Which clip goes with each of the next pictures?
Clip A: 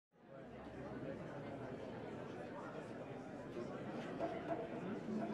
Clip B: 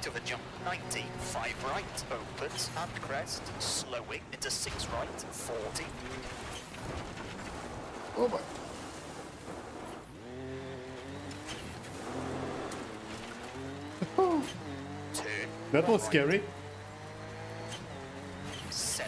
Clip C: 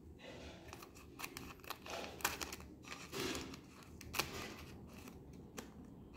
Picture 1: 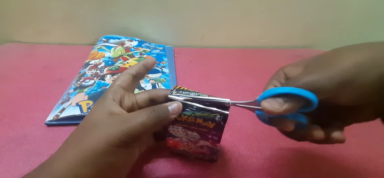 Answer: C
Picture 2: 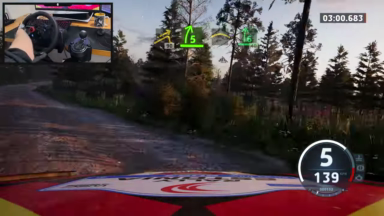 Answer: B